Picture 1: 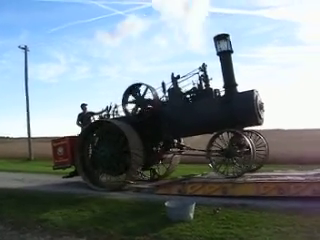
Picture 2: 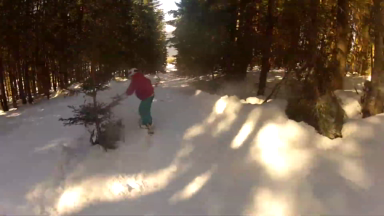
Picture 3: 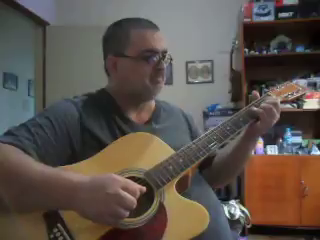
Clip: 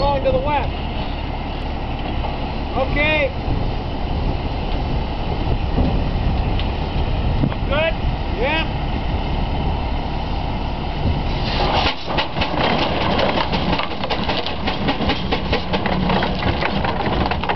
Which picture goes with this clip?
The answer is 1